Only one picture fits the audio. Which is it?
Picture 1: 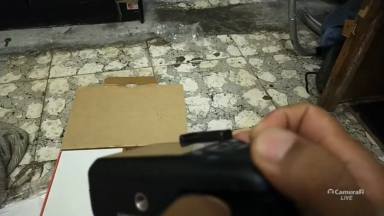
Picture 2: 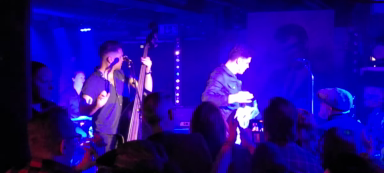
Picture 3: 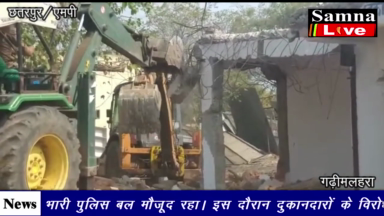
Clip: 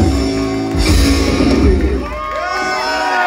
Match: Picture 2